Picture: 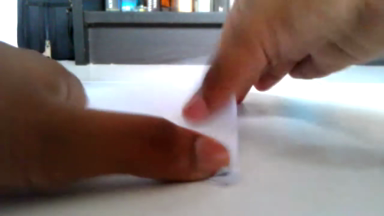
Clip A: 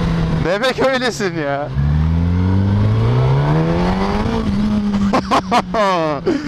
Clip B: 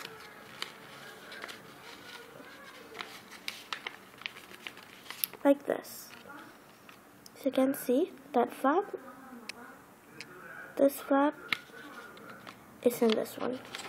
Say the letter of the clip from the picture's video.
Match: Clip B